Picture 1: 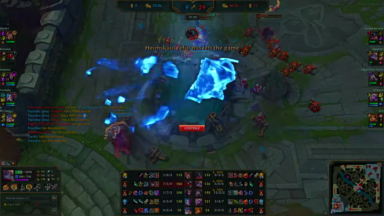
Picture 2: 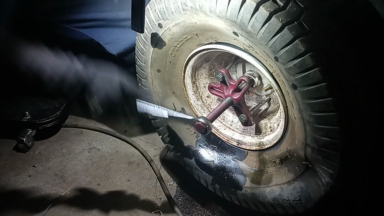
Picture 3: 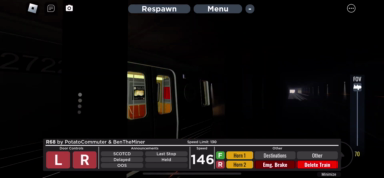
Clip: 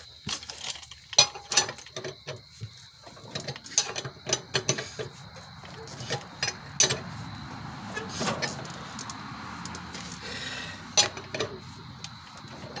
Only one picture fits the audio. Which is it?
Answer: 2